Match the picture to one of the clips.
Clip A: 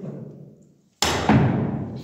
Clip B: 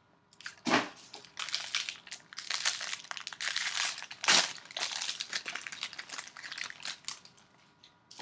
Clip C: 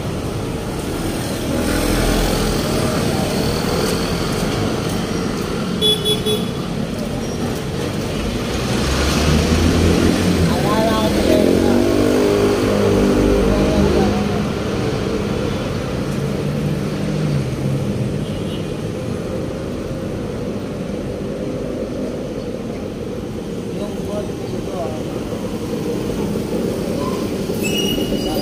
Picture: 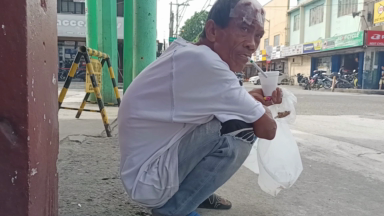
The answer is C